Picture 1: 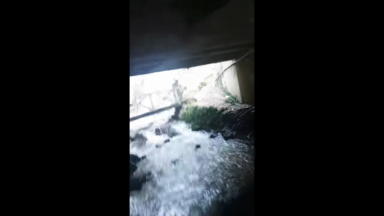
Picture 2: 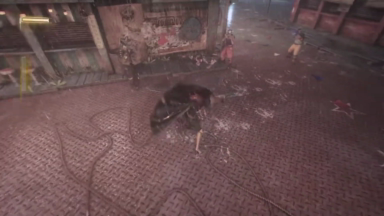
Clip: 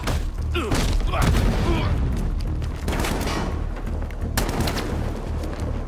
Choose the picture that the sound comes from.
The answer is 2